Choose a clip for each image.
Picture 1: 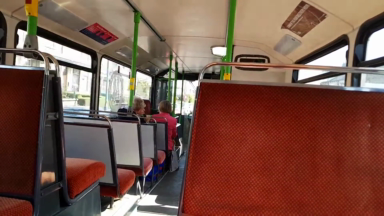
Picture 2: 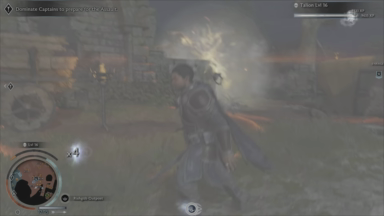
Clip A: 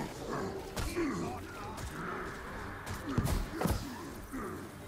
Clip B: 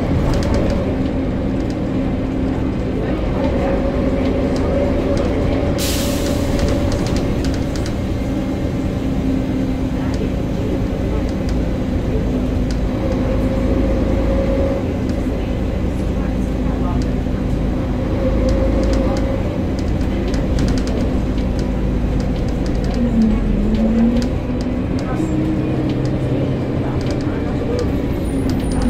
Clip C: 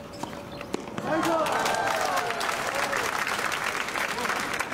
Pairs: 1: B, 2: A